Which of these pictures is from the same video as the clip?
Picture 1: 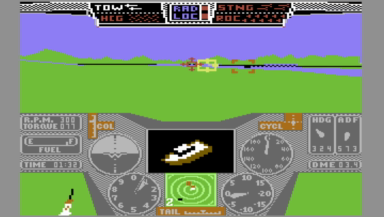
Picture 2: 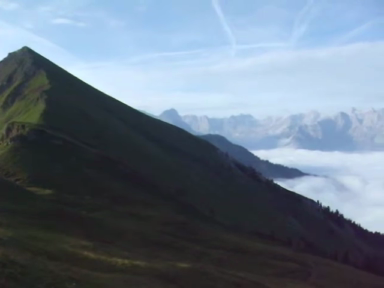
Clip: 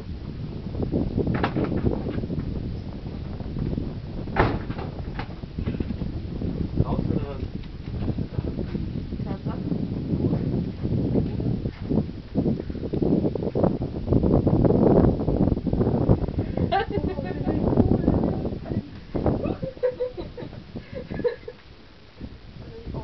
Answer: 2